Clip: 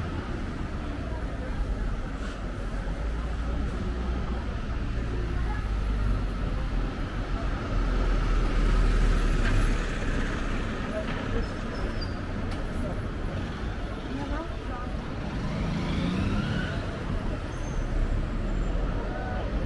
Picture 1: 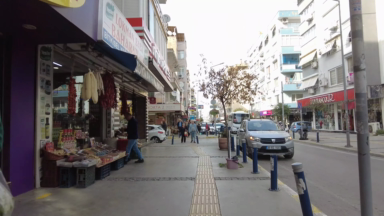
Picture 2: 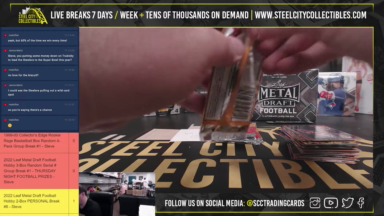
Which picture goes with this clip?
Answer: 1